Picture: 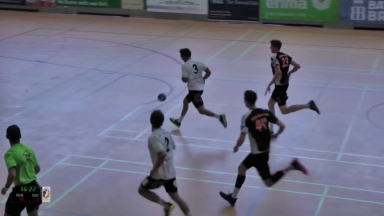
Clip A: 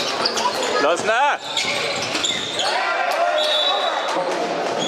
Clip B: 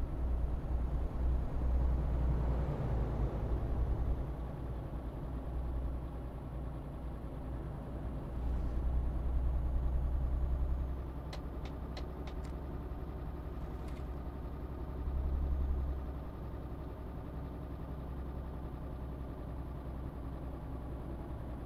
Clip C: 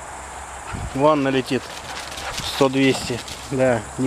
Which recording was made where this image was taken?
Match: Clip A